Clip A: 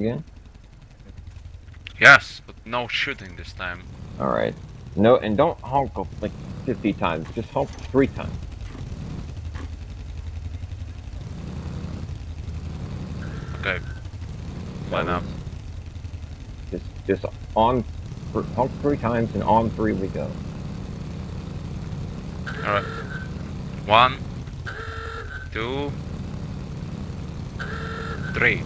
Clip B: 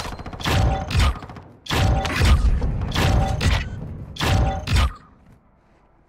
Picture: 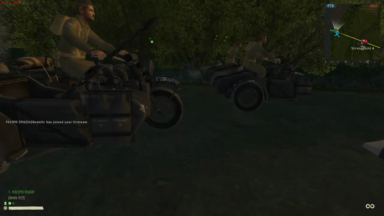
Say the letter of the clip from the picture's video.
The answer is A